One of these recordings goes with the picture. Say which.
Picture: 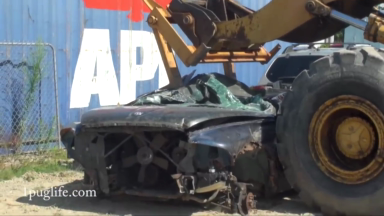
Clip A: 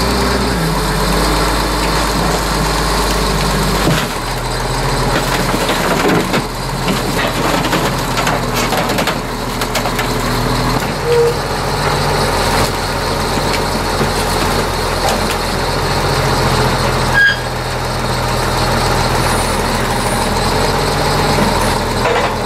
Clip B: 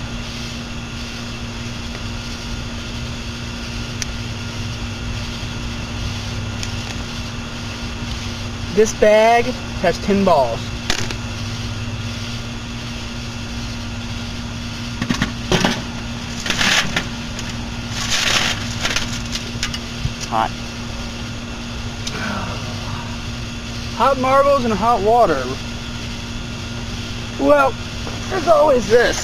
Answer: A